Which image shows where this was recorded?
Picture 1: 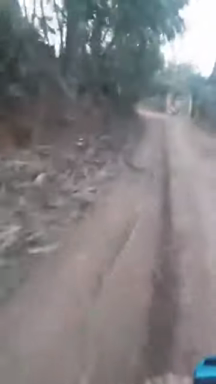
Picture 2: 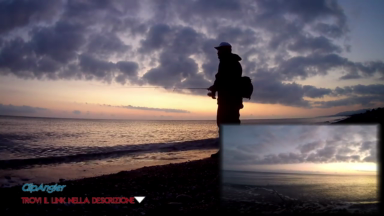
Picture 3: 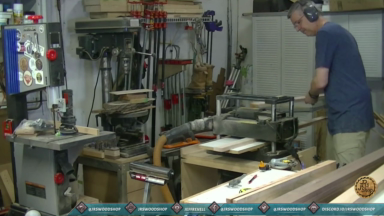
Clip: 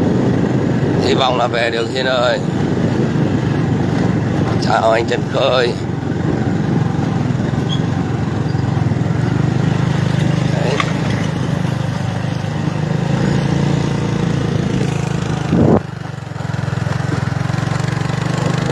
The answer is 1